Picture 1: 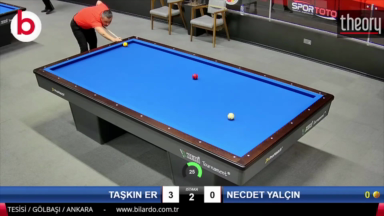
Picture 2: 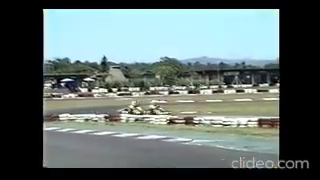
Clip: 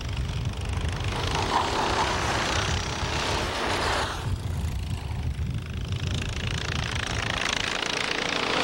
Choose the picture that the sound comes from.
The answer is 2